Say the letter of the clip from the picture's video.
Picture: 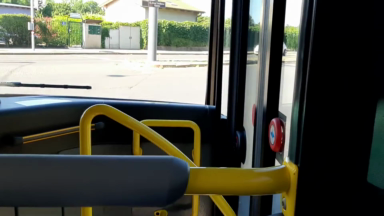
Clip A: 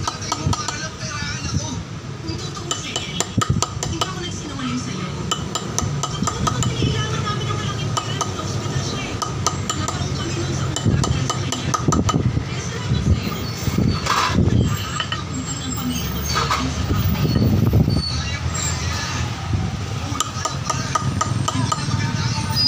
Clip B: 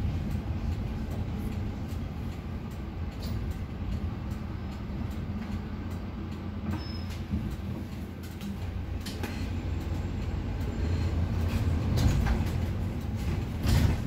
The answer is B